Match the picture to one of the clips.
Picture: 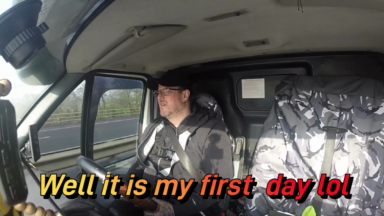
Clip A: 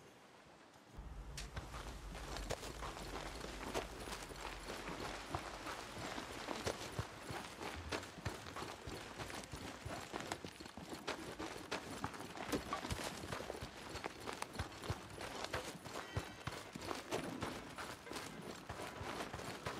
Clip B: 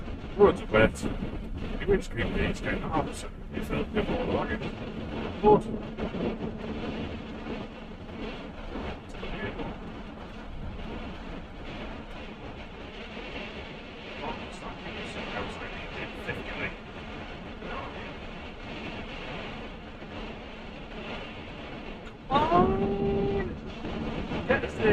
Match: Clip B